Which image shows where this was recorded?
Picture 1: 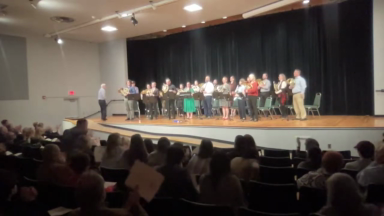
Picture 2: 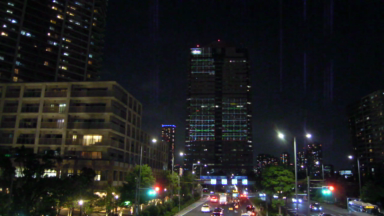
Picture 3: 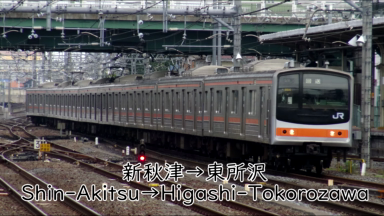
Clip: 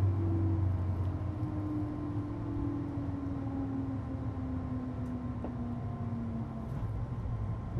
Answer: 3